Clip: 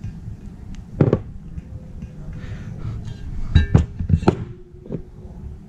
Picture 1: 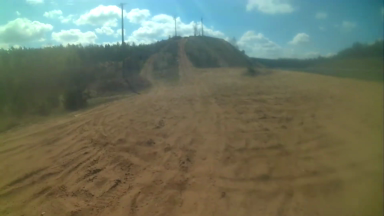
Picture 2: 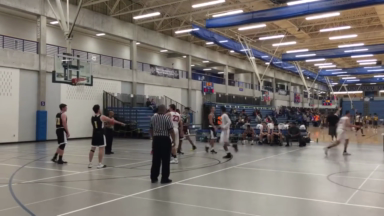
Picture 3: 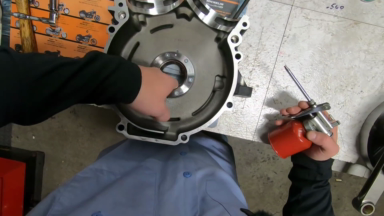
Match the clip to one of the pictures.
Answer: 3